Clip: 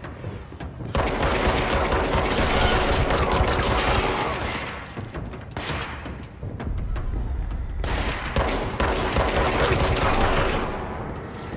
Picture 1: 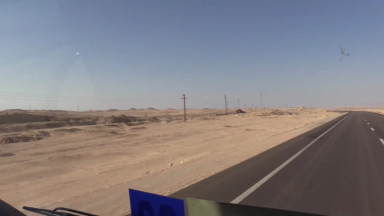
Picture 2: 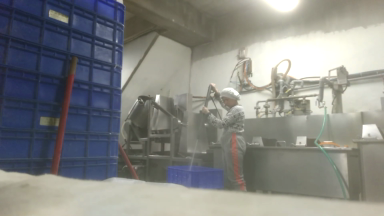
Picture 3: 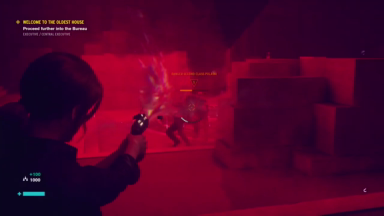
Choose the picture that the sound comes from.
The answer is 3